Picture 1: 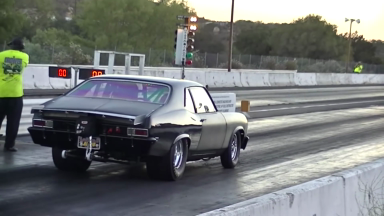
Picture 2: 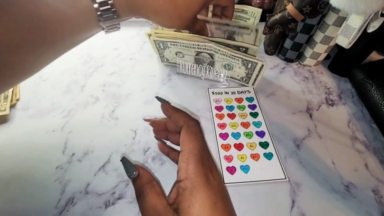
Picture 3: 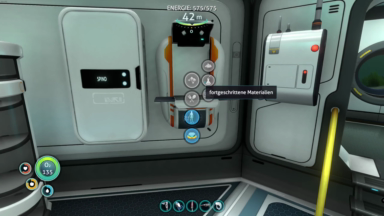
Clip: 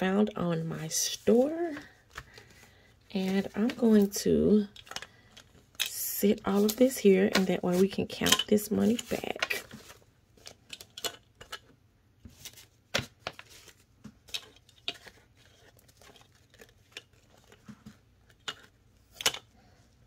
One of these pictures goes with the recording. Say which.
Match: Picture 2